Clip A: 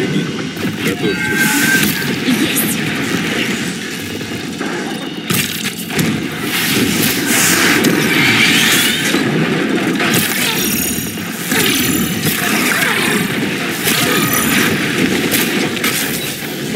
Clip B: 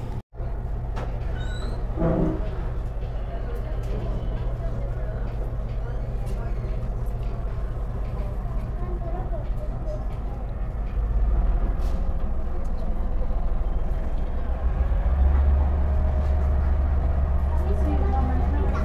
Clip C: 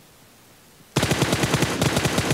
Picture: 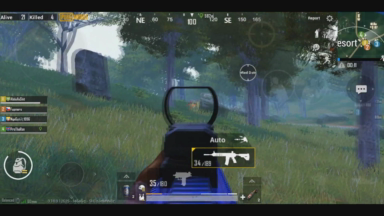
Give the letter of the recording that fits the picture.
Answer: C